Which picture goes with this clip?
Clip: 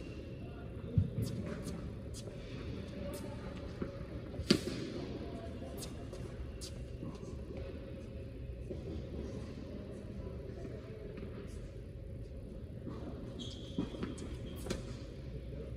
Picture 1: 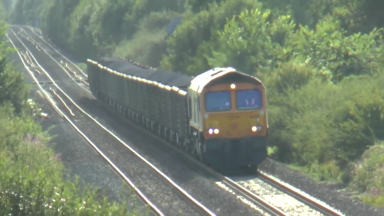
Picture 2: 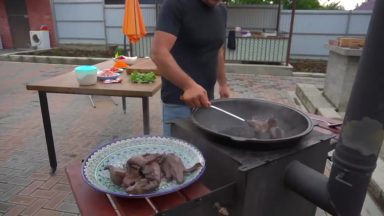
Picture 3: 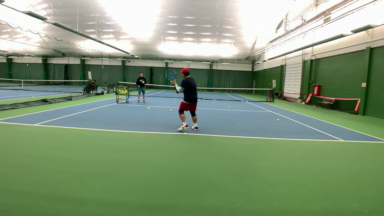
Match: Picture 3